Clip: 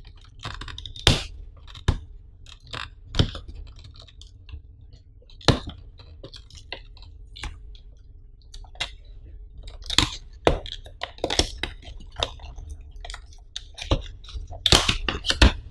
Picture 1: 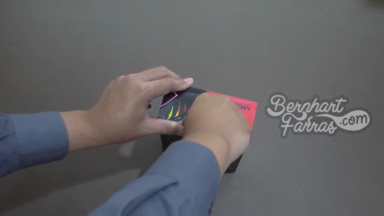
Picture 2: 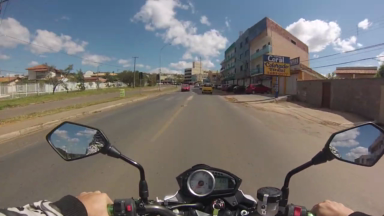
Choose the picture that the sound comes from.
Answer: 1